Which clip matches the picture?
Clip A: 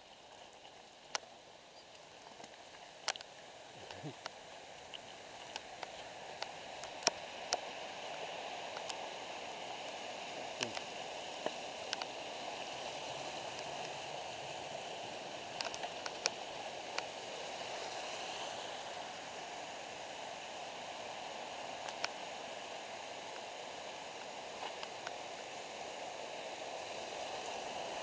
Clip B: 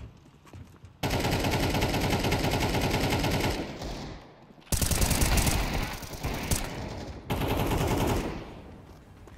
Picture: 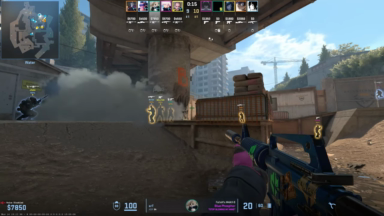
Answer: B